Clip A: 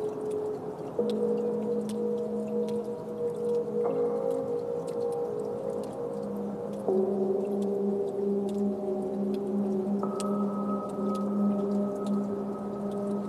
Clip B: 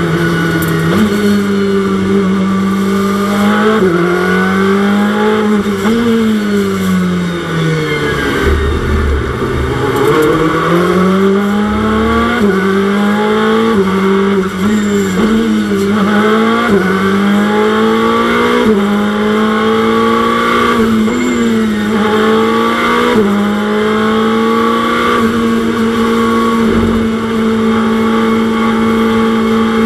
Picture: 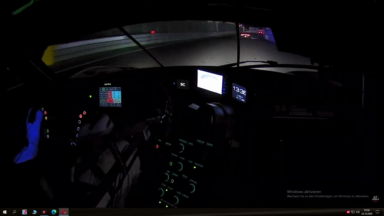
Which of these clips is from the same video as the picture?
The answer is B